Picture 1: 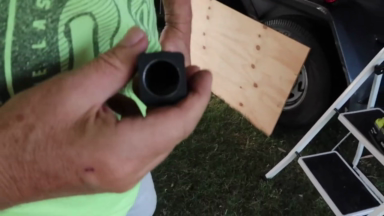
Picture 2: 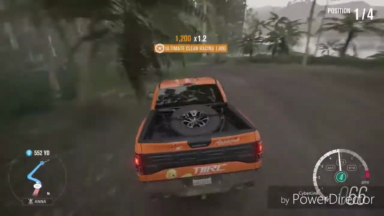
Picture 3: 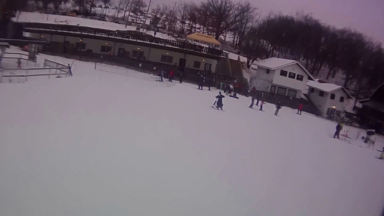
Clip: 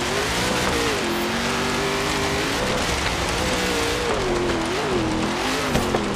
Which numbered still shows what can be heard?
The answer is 2